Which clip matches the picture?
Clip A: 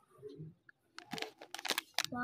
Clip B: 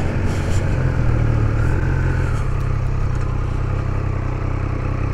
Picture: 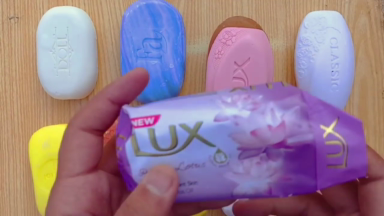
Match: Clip A